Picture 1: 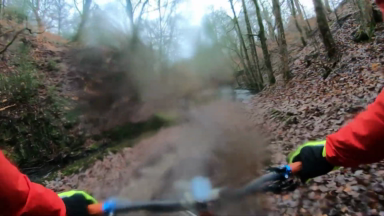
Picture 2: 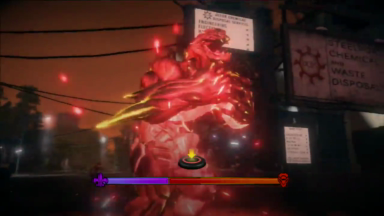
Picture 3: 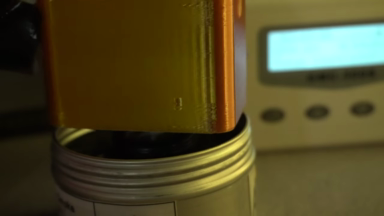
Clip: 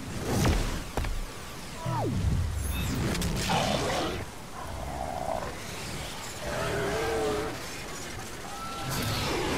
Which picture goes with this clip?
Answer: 2